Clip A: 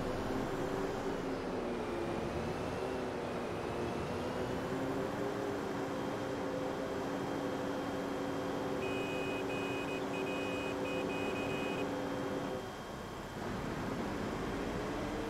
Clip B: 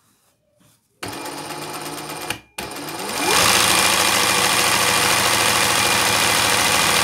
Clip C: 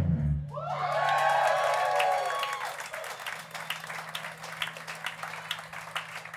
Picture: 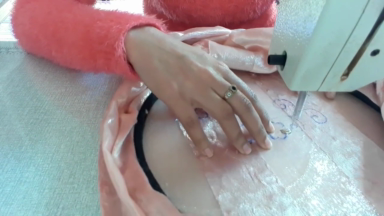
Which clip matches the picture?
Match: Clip B